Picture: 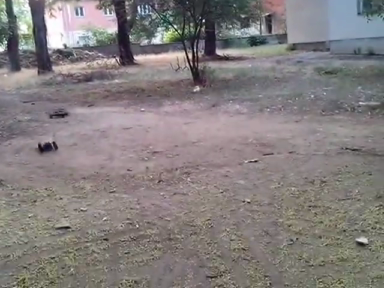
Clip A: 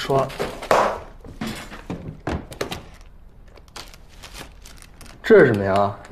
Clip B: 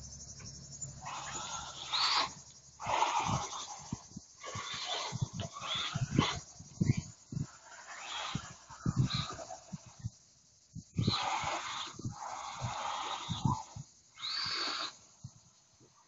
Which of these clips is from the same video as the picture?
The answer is B